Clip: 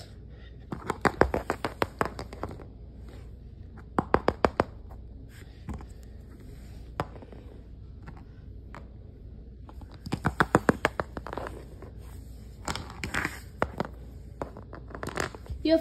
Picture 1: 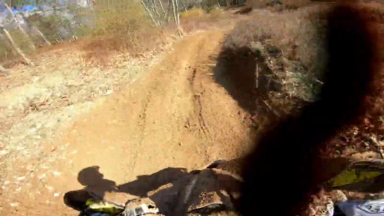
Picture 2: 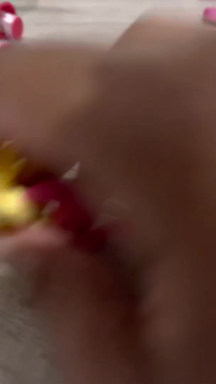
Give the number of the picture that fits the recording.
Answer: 2